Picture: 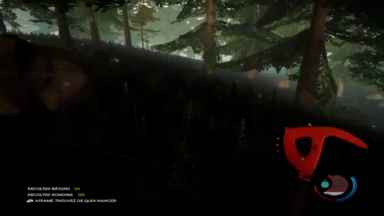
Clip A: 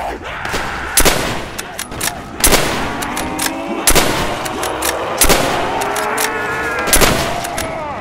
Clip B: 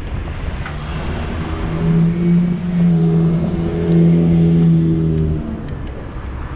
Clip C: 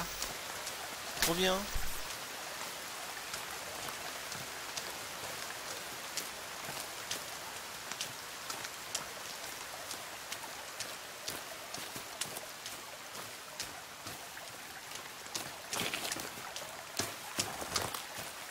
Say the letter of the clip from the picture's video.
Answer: C